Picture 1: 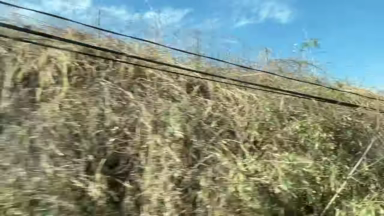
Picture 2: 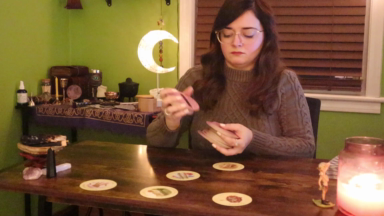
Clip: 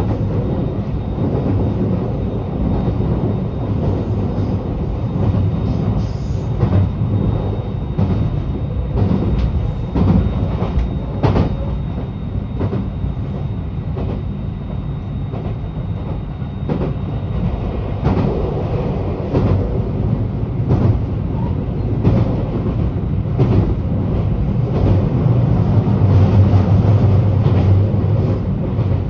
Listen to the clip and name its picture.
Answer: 1